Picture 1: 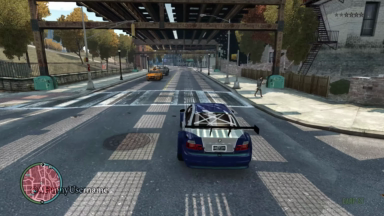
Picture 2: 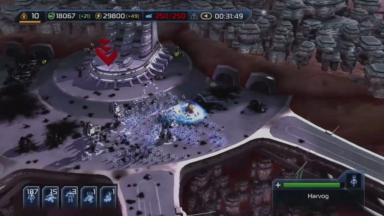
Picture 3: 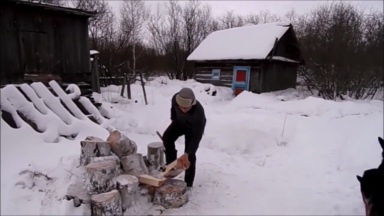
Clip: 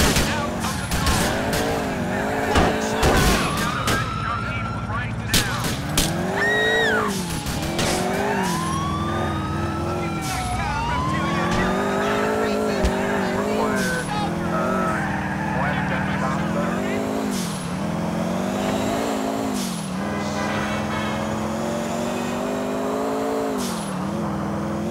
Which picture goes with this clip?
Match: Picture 1